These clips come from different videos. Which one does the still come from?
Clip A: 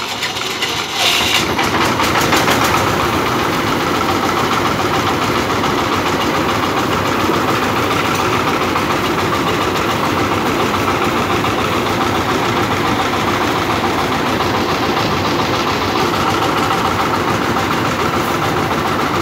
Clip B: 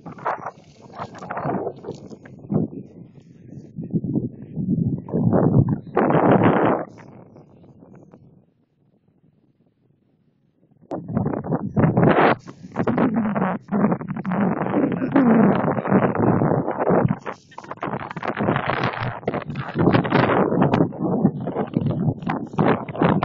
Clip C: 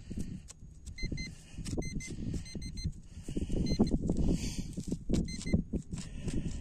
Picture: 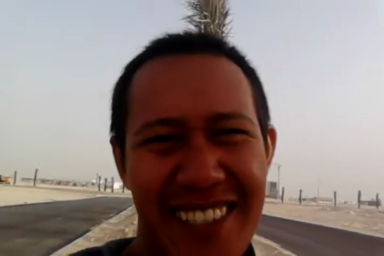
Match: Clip B